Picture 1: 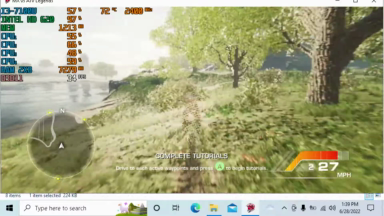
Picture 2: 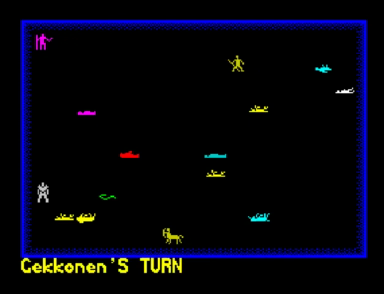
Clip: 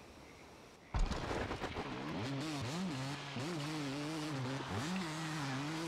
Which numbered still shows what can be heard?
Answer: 1